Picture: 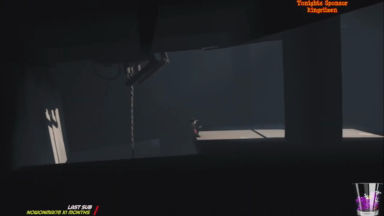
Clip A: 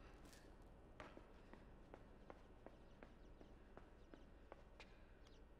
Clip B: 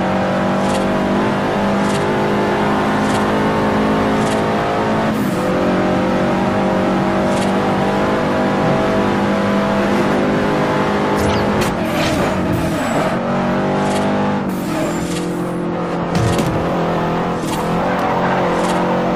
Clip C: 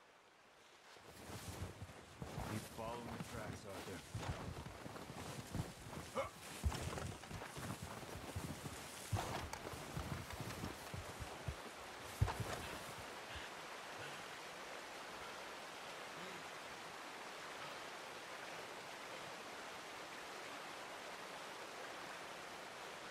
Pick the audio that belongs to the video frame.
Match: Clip A